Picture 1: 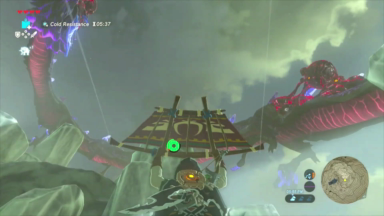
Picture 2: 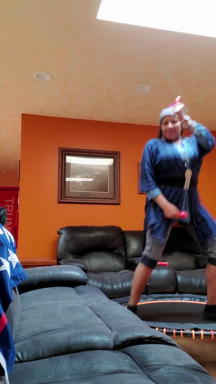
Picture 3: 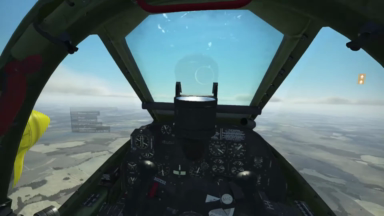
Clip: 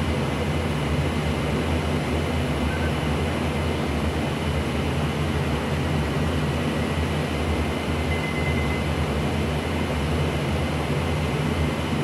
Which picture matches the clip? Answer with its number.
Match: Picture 3